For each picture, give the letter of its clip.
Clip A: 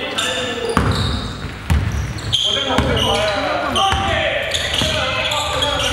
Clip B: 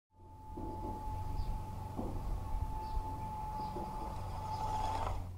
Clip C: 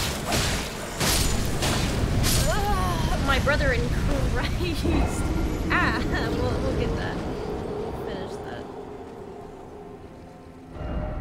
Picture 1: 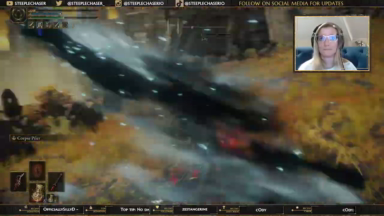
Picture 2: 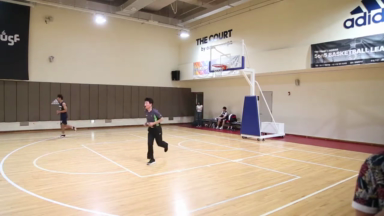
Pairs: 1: C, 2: A